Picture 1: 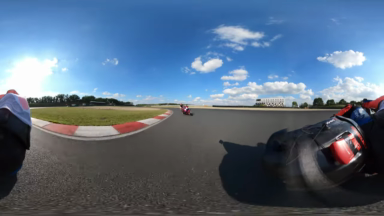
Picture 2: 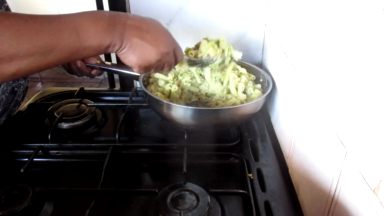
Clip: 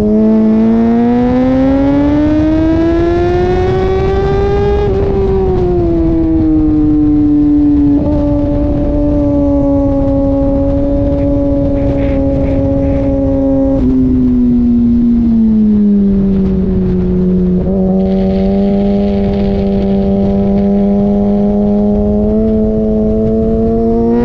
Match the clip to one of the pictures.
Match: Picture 1